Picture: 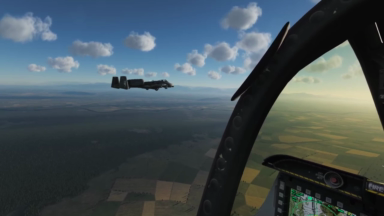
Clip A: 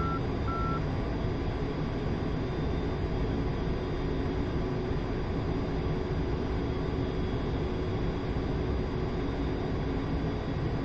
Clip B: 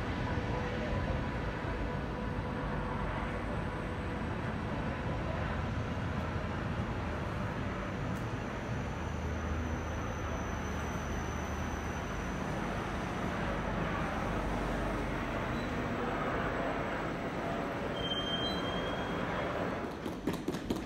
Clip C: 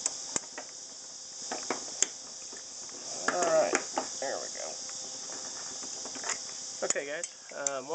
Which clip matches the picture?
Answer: A